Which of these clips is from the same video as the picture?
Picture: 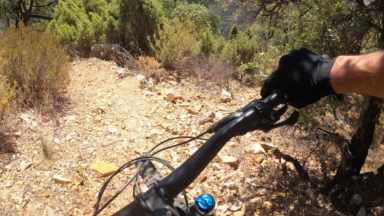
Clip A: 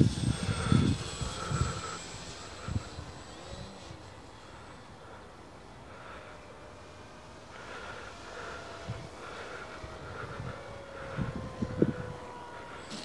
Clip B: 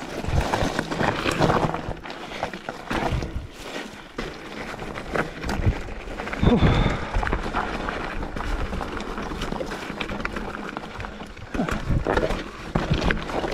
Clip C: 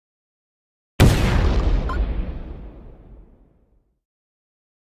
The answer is B